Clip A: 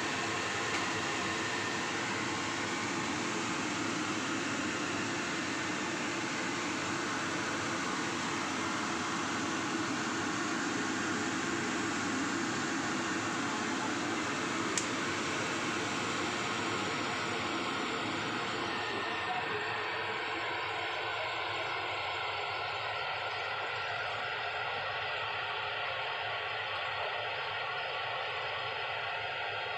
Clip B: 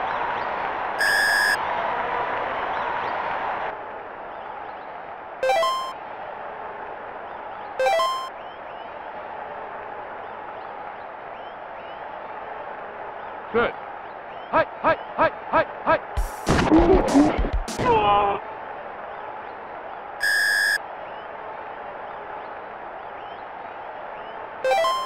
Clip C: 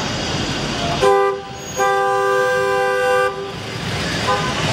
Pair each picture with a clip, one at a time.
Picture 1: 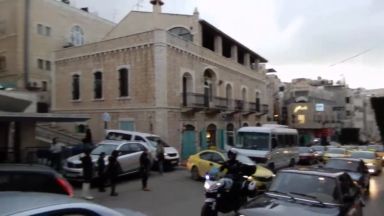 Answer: C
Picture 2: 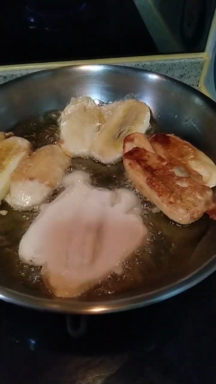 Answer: A